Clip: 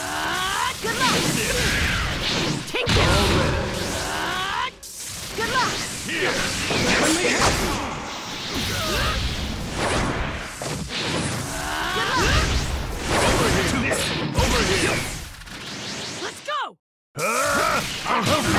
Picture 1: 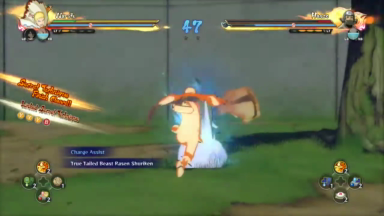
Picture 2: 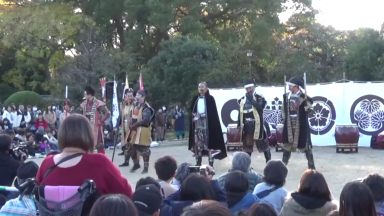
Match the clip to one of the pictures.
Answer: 1